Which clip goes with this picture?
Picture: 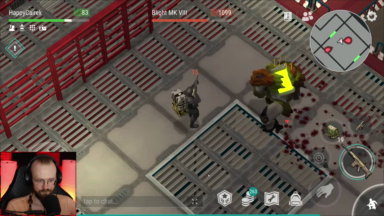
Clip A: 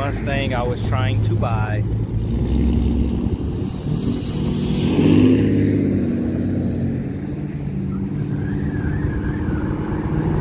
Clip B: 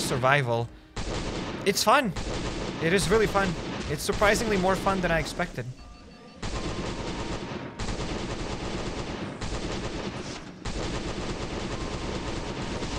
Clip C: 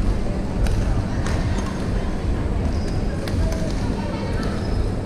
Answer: B